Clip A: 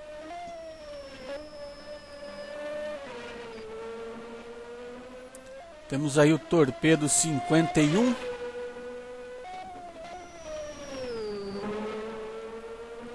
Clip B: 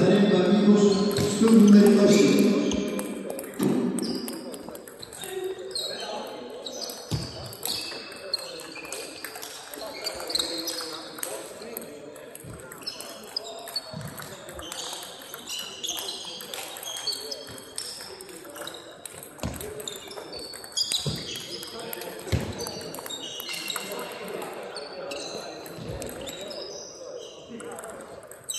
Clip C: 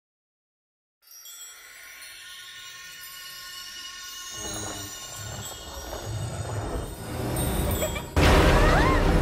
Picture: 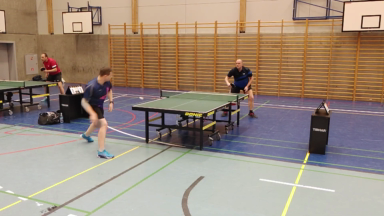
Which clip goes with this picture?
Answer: B